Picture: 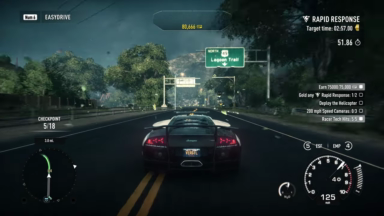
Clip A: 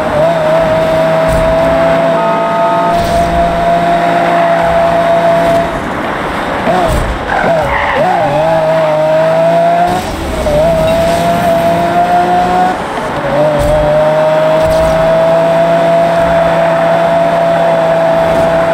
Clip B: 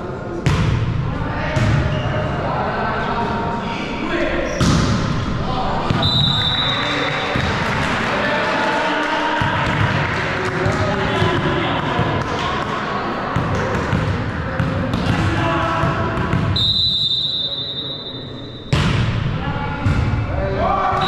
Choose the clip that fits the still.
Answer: A